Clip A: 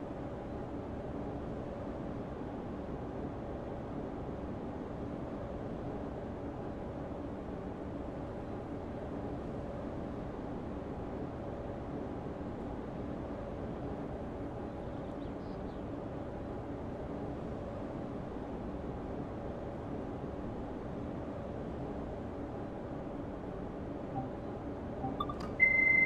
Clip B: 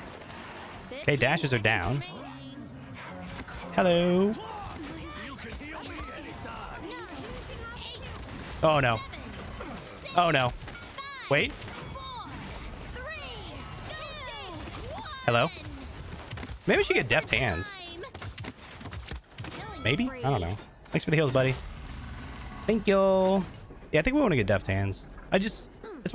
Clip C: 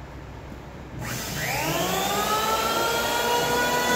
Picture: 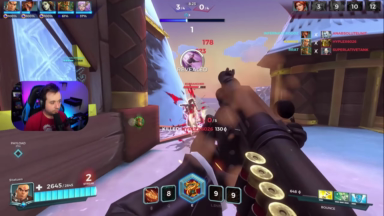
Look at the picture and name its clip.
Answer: B